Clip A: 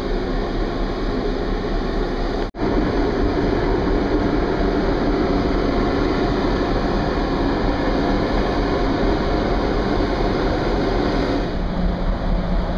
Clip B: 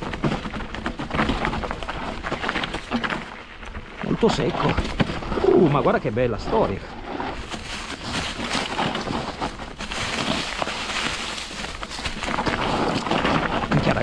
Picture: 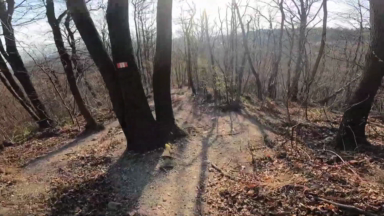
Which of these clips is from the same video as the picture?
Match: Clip B